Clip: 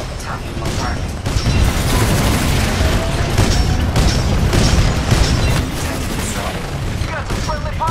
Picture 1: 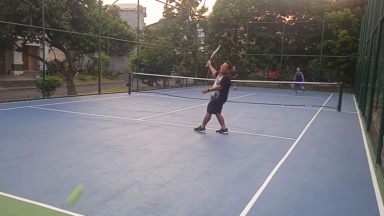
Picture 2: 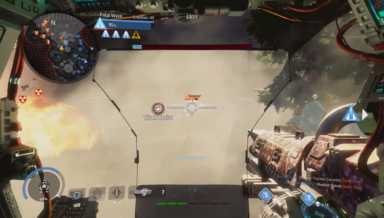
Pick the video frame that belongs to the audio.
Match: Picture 2